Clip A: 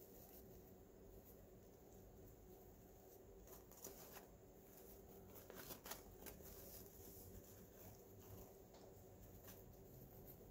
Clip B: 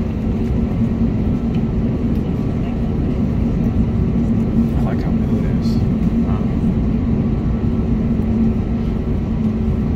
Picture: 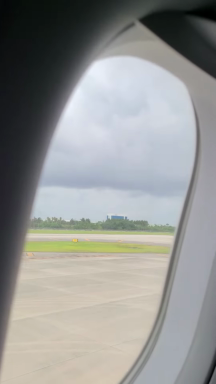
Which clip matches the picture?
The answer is B